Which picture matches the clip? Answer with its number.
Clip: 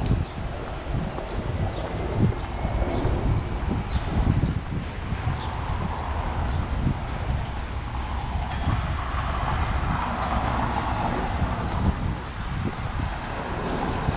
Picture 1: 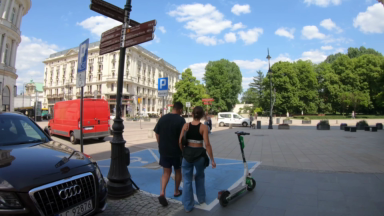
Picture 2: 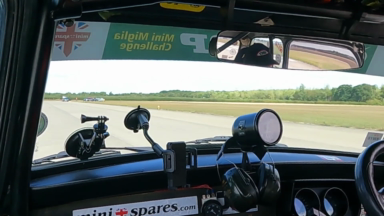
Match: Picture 1